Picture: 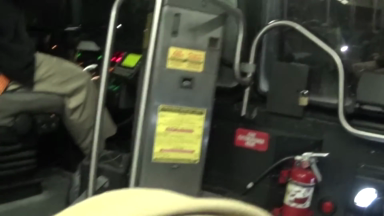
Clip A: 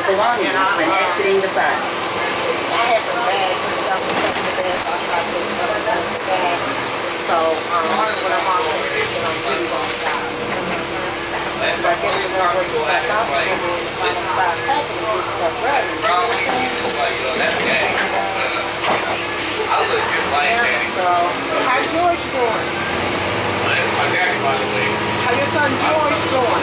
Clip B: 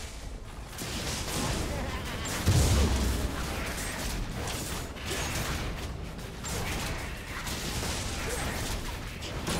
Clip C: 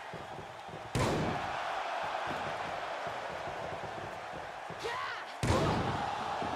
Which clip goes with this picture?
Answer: A